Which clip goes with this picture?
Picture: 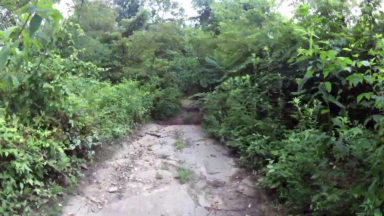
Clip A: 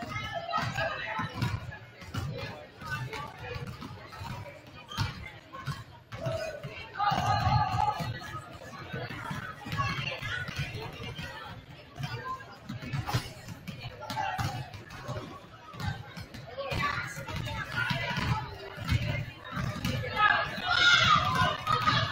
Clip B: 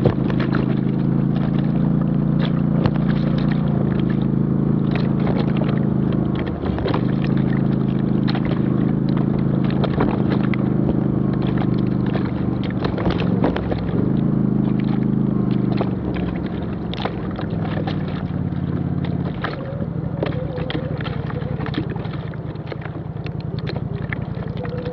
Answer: B